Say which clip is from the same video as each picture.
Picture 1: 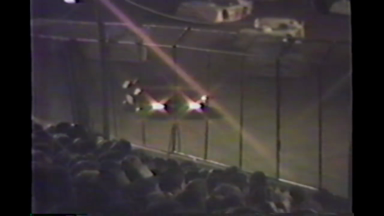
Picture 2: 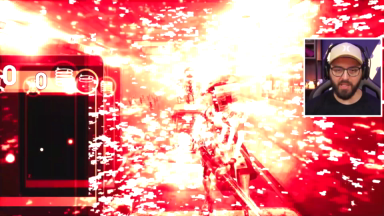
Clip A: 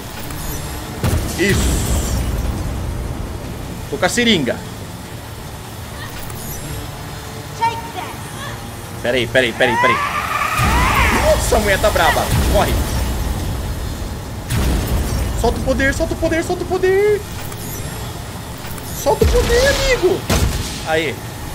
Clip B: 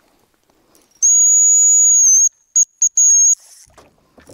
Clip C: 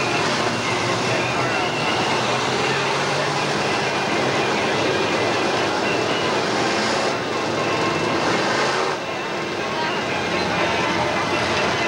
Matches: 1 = C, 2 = A